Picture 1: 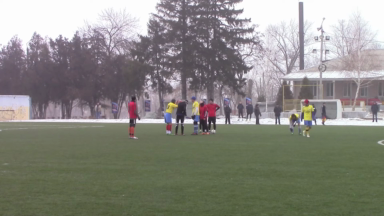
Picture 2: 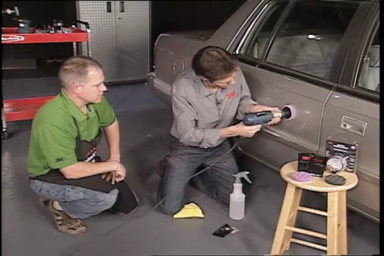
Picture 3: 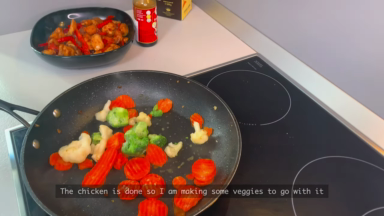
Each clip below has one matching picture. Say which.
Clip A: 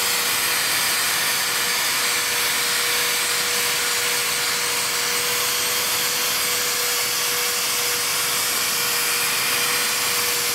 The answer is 2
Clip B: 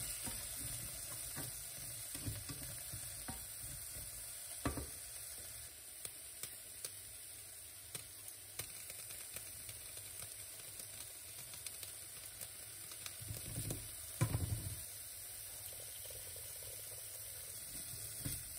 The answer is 3